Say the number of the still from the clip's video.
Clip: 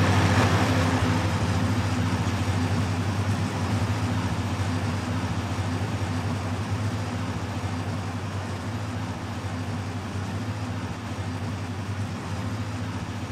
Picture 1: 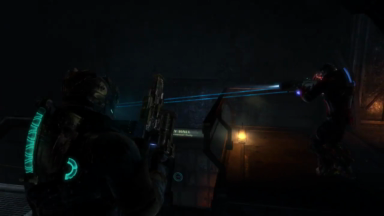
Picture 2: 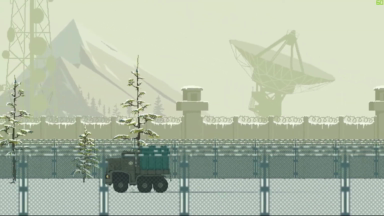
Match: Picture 2